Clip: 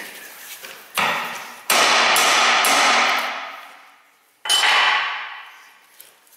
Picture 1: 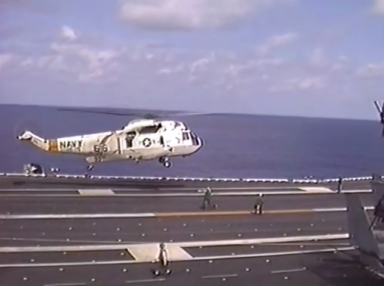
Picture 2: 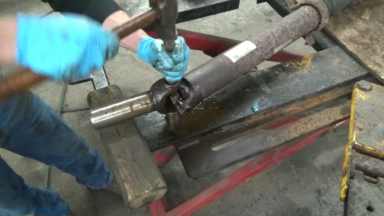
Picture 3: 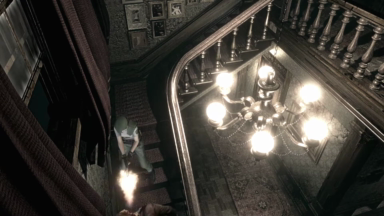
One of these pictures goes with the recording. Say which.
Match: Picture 2